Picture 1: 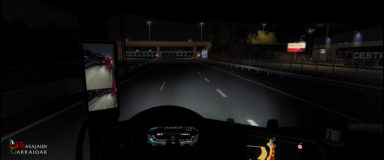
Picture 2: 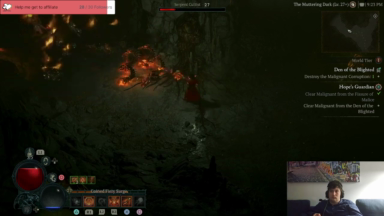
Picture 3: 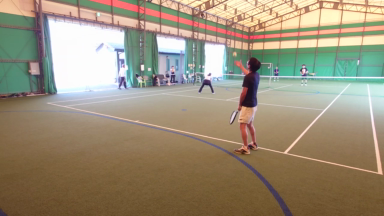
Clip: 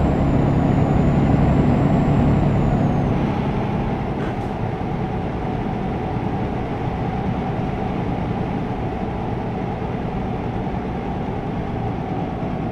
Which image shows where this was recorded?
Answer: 1